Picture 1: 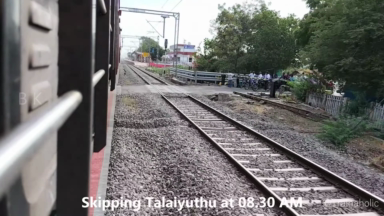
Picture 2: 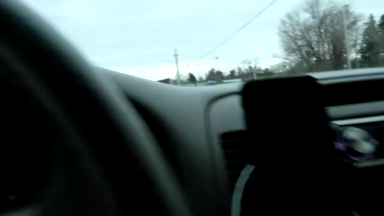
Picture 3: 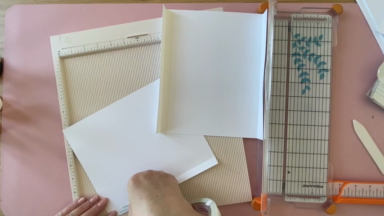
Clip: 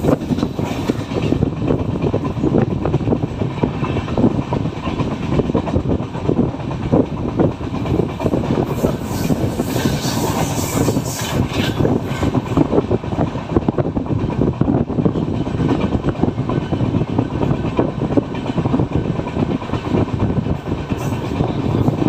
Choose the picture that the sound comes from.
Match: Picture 1